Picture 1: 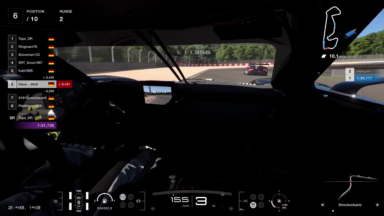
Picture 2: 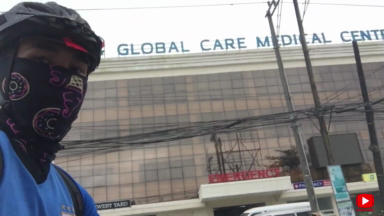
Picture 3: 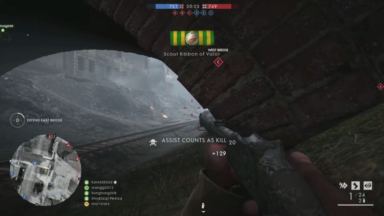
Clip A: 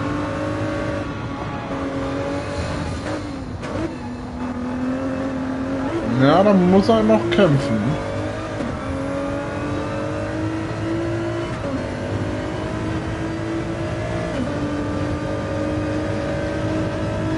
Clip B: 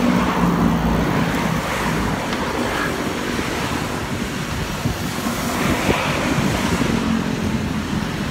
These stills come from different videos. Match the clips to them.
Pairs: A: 1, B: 2